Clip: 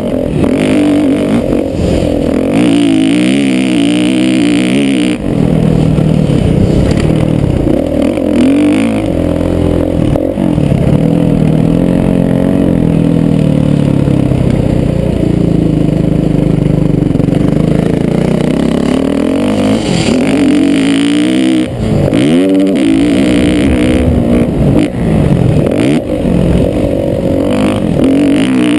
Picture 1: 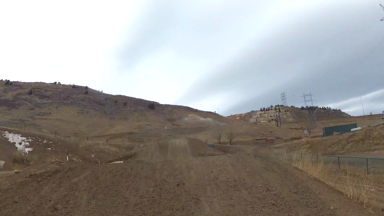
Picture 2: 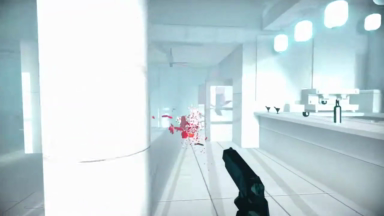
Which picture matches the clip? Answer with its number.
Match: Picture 1